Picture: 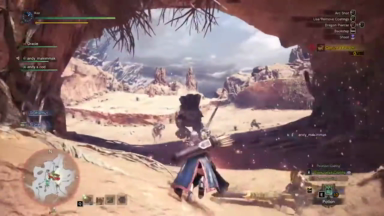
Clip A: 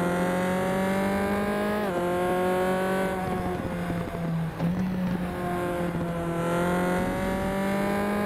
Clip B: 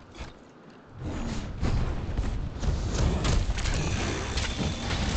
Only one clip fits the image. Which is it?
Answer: B